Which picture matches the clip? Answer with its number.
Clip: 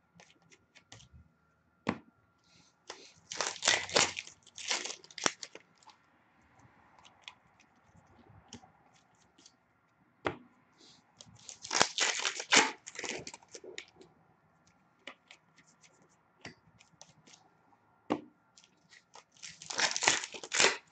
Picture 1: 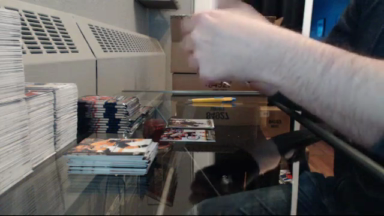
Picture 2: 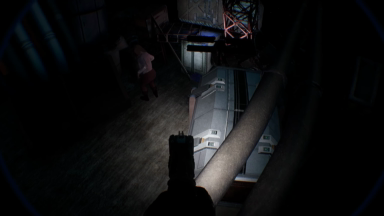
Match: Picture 1